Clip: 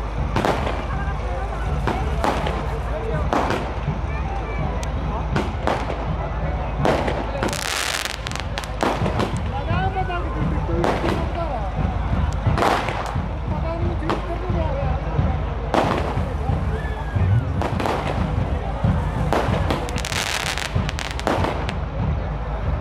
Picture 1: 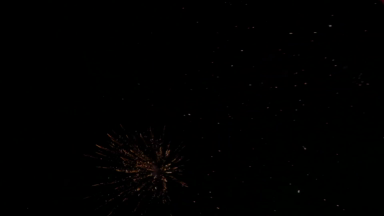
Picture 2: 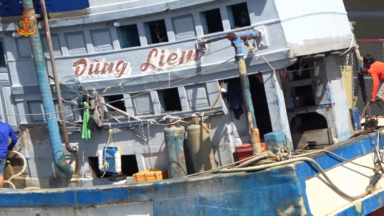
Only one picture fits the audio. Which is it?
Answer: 1